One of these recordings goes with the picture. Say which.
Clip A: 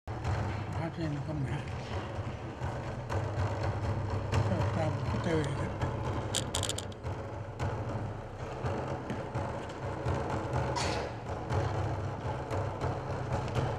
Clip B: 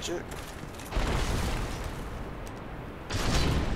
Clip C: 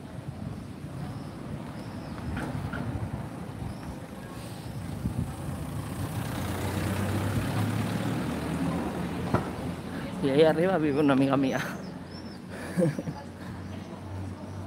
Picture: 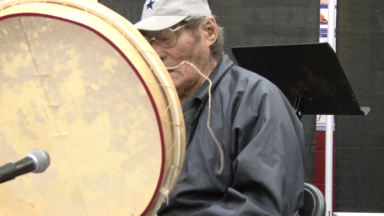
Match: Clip A